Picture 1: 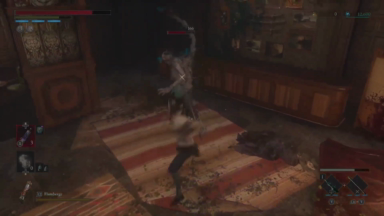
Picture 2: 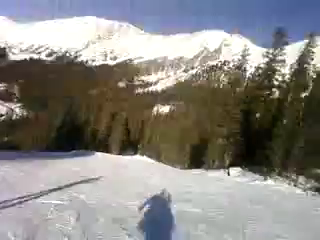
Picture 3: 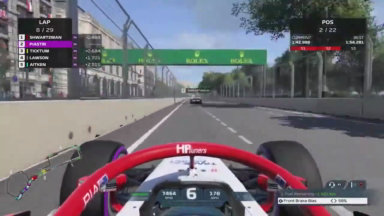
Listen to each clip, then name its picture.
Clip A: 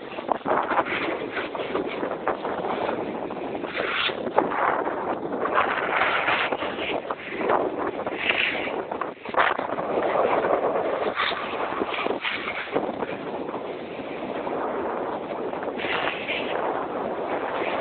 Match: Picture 2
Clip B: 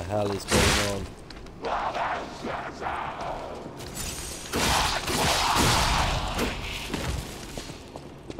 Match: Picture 1